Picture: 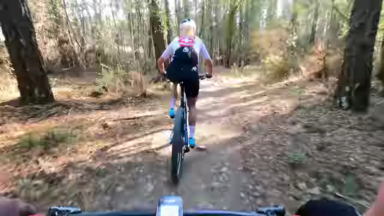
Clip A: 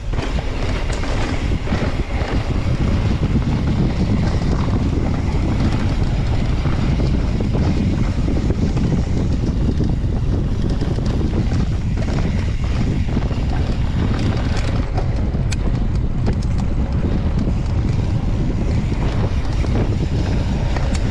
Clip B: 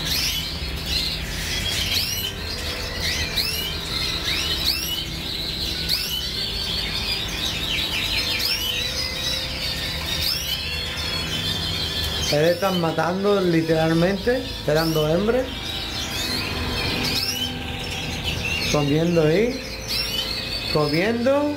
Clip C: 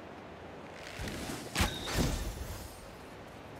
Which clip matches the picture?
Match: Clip A